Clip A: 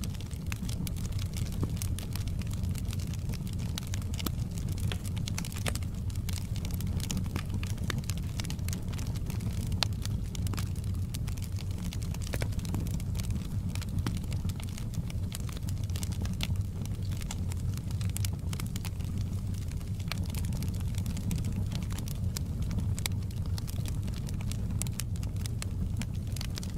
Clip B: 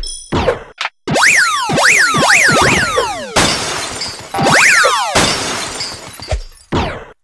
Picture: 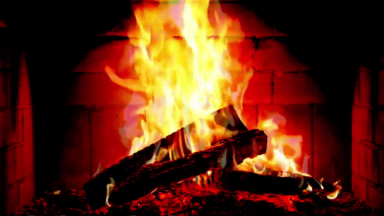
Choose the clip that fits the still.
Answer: A